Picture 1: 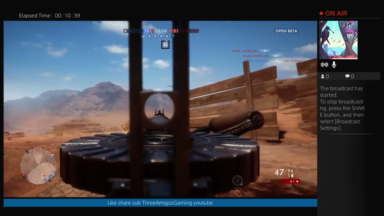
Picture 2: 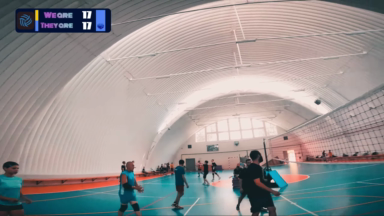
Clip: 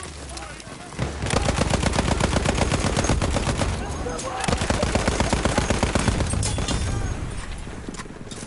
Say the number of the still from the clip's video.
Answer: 1